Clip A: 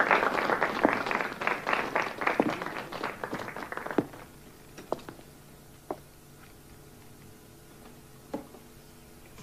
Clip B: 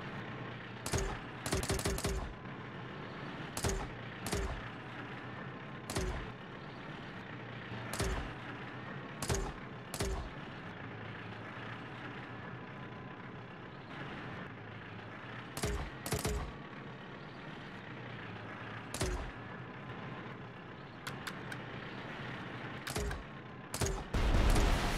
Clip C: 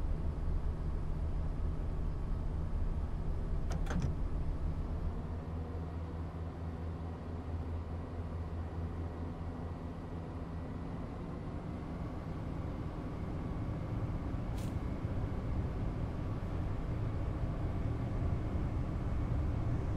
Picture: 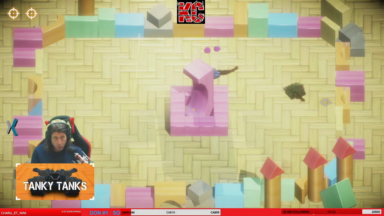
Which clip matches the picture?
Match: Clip B